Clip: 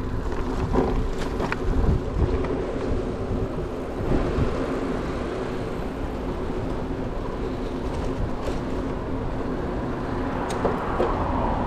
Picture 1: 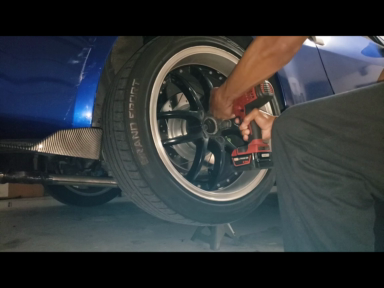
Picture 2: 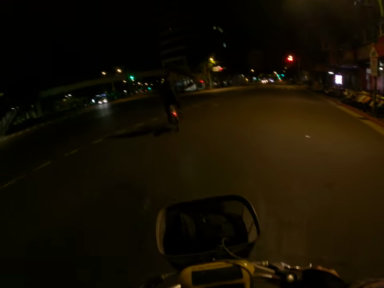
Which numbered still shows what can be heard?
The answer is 2